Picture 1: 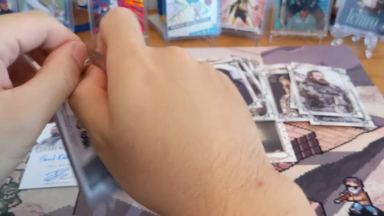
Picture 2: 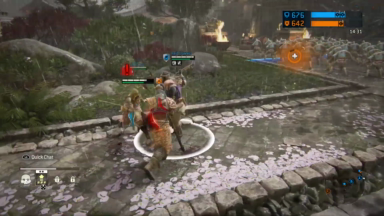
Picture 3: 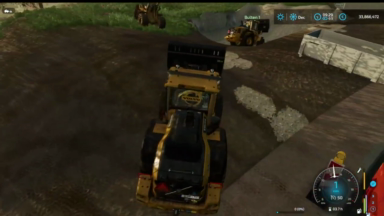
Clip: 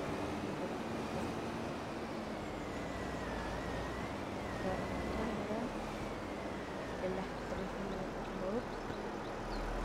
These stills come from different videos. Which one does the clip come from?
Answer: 3